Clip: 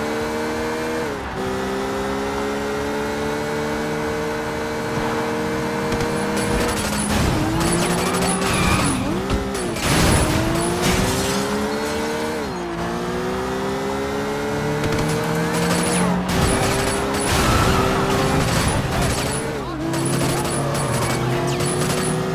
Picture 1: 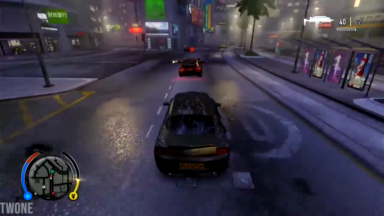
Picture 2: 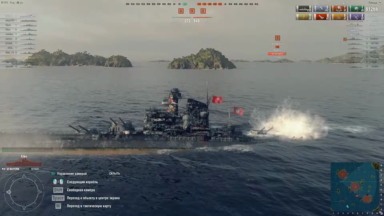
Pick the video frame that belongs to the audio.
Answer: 1